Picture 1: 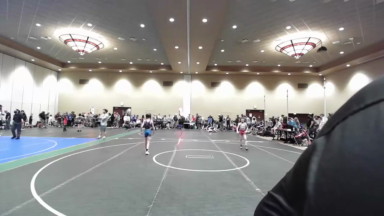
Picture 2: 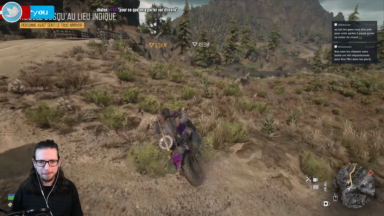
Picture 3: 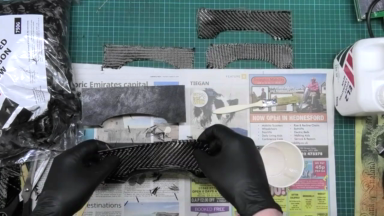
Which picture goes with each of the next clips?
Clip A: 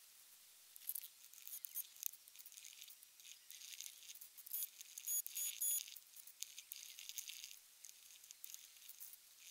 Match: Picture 3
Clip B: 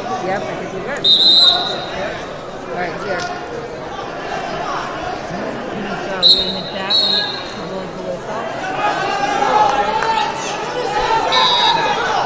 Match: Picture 1